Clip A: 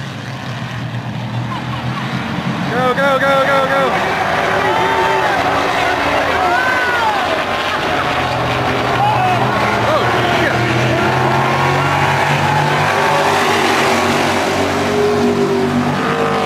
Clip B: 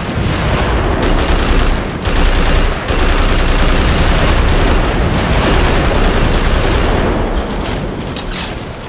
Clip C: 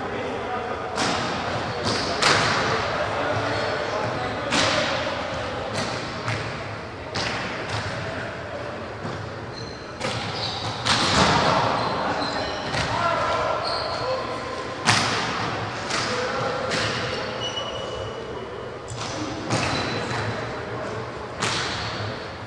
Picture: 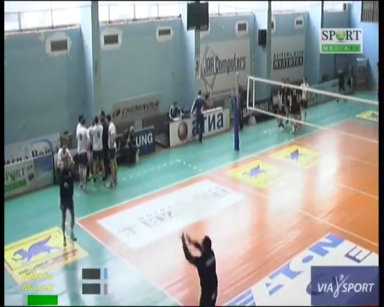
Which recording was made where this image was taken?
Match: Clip C